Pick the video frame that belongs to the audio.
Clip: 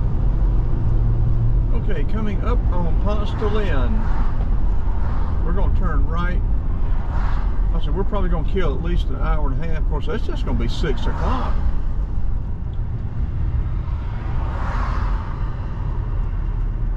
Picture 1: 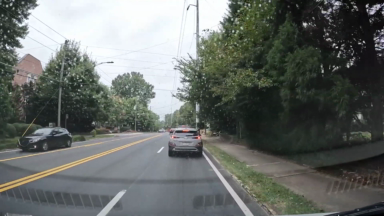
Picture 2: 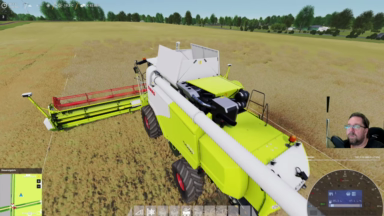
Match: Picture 1